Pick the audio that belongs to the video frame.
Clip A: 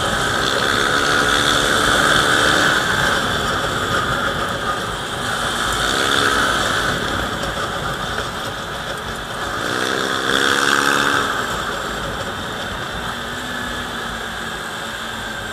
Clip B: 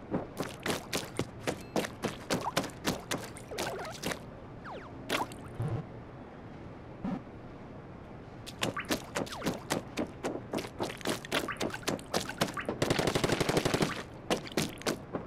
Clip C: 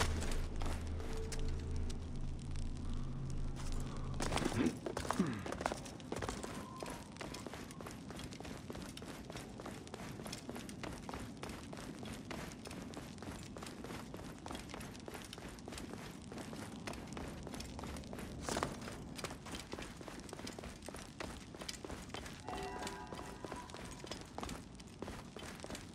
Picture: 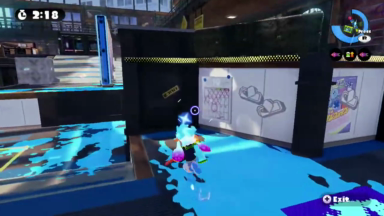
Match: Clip B